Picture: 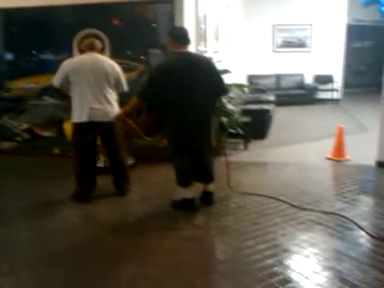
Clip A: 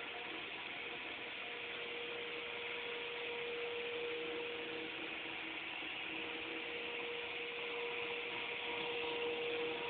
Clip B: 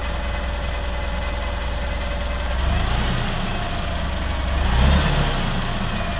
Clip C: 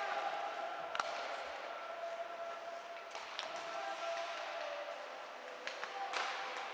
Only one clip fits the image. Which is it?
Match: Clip A